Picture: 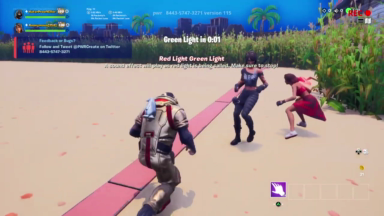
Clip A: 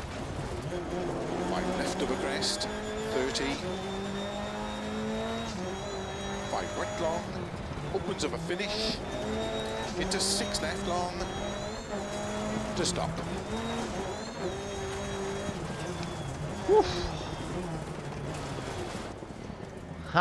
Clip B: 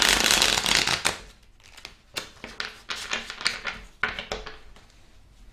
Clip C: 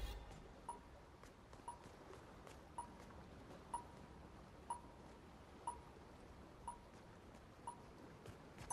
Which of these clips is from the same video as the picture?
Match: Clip C